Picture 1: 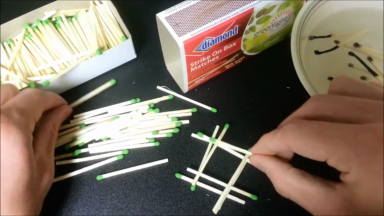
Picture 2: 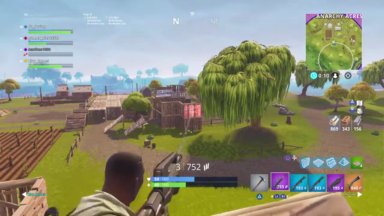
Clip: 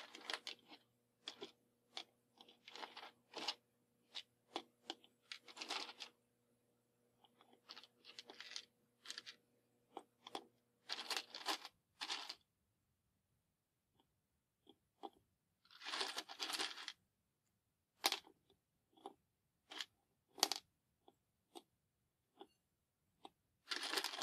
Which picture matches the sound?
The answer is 1